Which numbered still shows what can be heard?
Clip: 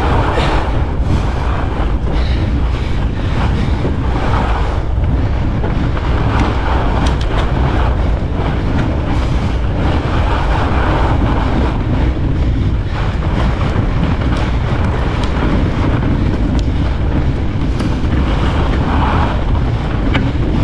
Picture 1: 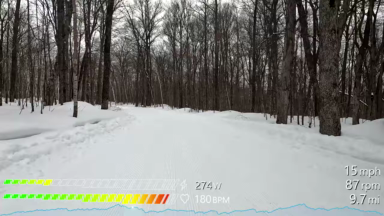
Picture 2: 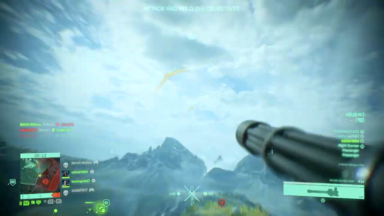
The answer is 1